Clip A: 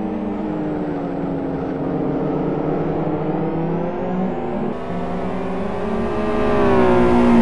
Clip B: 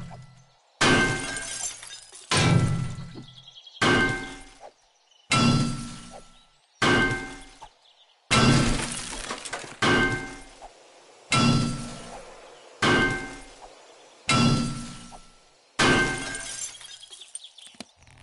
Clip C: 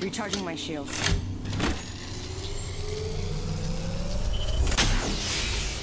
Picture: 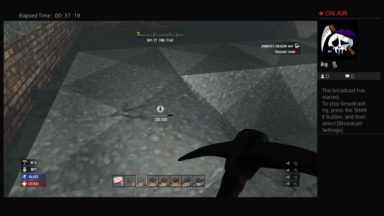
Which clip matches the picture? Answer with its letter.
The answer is B